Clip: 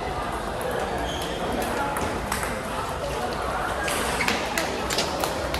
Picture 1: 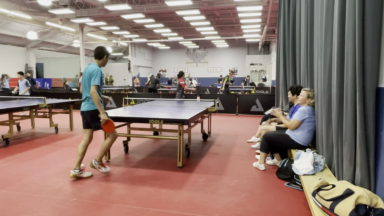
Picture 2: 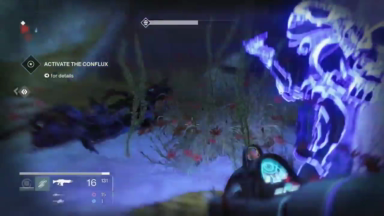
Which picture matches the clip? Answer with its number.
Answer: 1